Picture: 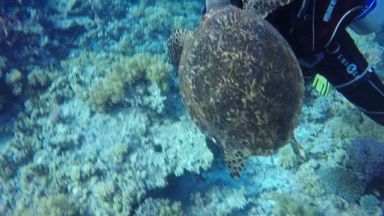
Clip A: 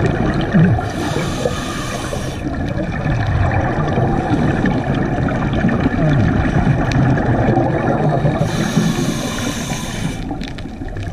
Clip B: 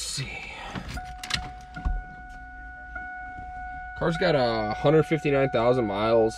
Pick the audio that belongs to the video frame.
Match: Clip A